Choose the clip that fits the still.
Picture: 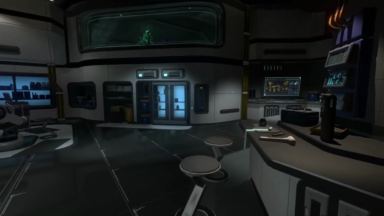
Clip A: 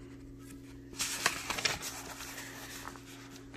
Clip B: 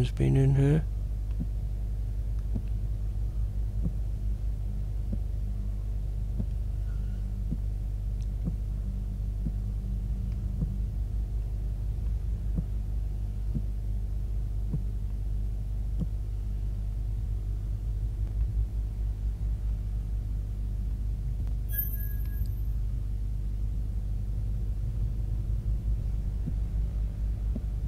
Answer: B